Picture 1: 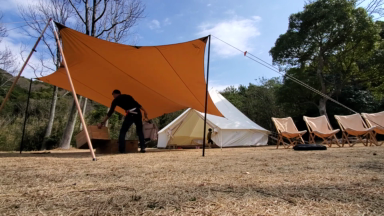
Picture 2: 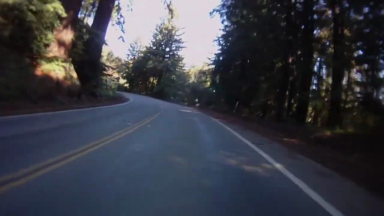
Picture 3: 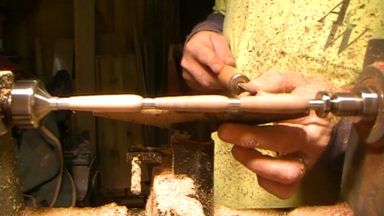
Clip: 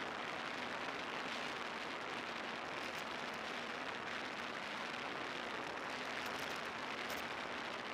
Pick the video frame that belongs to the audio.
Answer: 2